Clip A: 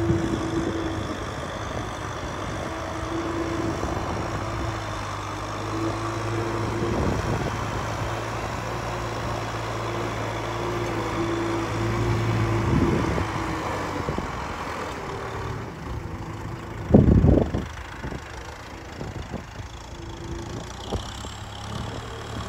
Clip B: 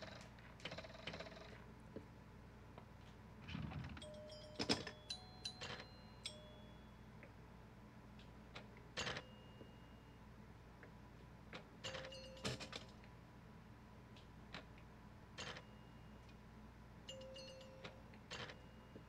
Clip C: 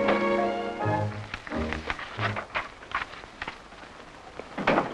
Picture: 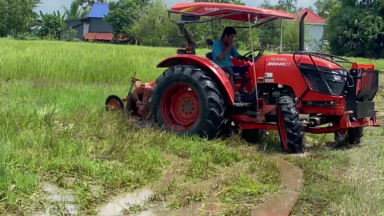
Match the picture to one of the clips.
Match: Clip A